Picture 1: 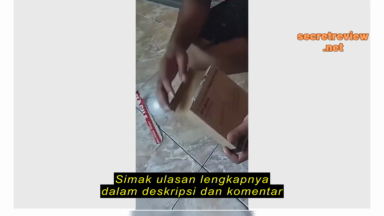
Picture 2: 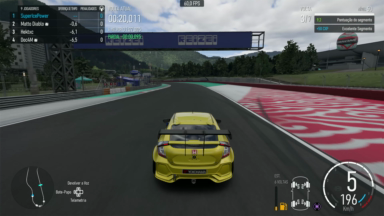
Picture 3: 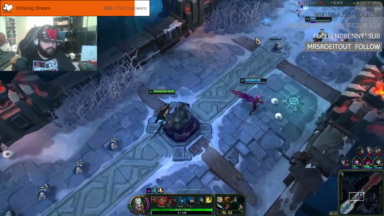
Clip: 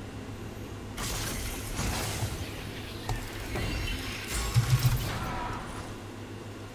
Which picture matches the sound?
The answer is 3